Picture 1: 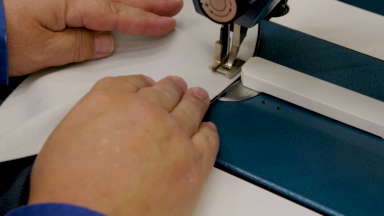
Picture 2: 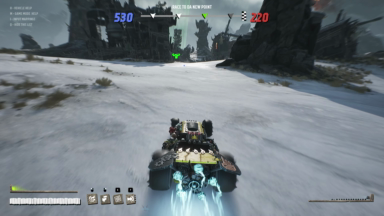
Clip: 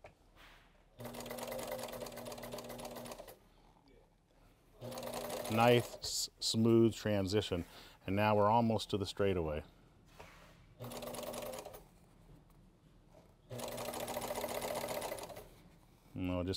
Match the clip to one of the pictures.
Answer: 1